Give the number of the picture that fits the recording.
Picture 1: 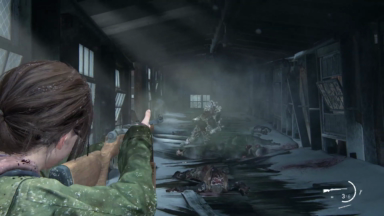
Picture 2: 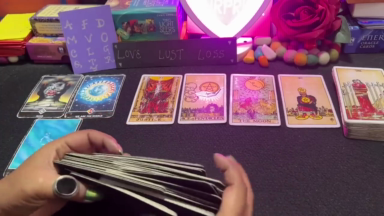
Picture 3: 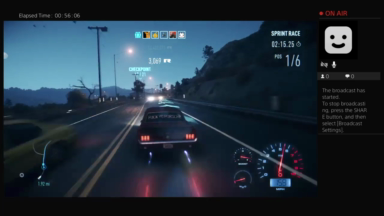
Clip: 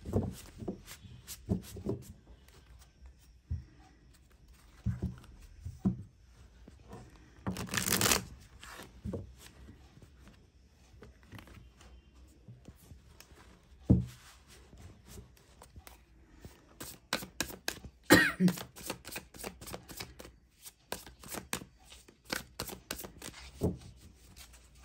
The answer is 2